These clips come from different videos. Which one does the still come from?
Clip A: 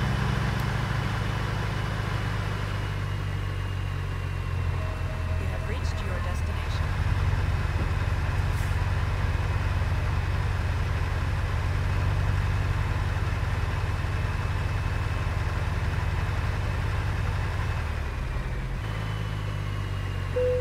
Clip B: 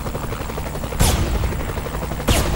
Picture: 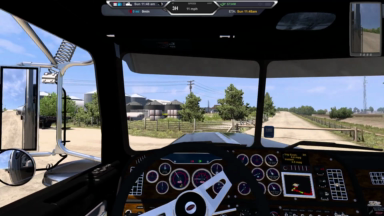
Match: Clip A